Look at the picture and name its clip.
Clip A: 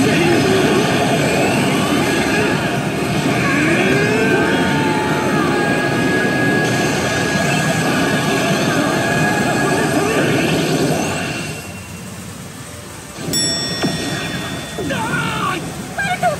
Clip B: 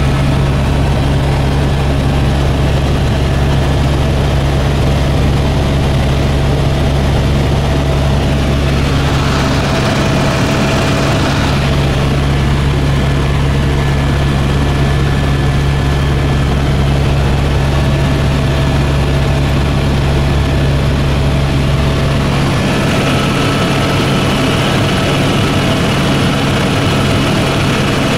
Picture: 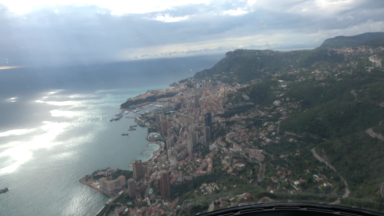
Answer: B